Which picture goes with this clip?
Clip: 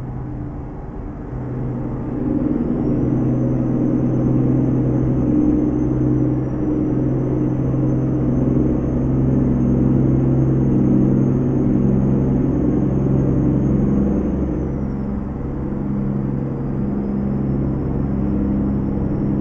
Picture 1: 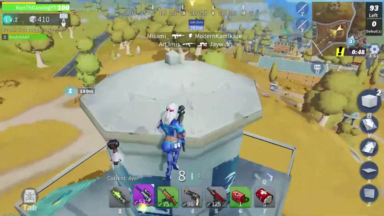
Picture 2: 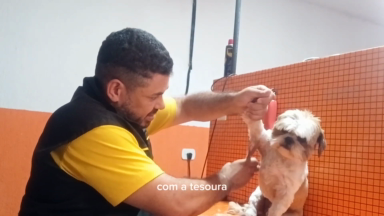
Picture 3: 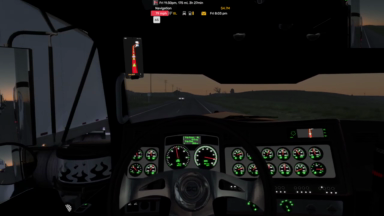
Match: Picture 3